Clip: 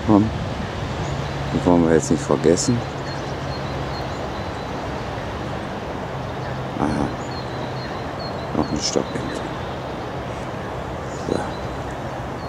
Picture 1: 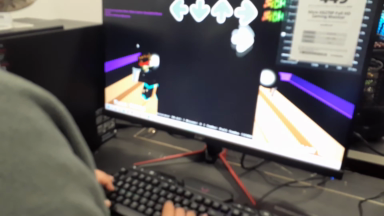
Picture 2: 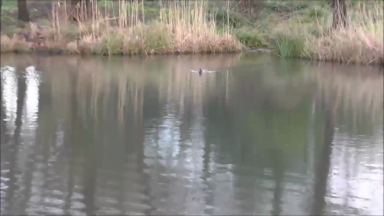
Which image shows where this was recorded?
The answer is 2